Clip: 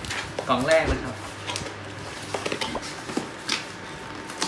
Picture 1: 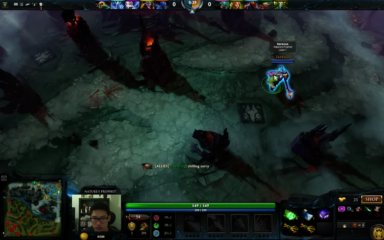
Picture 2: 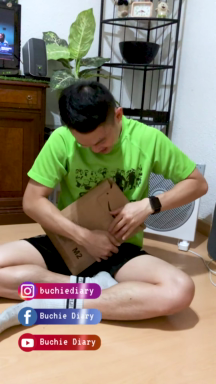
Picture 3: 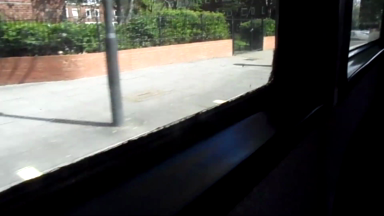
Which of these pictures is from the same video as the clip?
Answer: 2